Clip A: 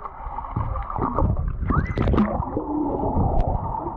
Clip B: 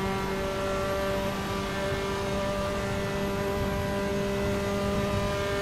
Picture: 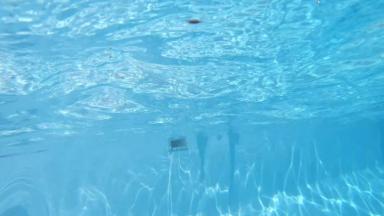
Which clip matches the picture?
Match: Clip A